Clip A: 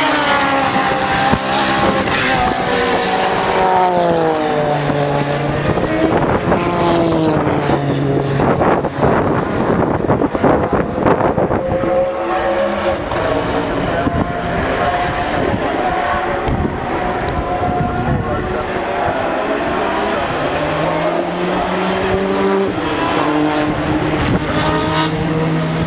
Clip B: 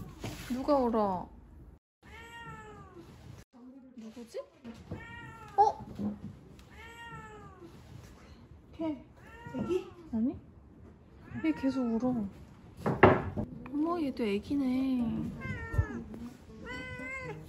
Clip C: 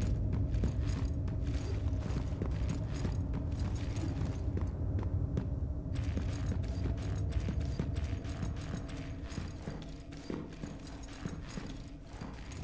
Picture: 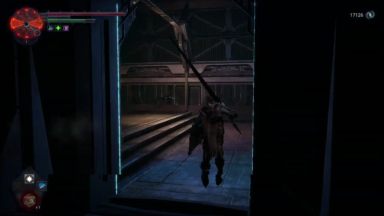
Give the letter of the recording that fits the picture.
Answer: C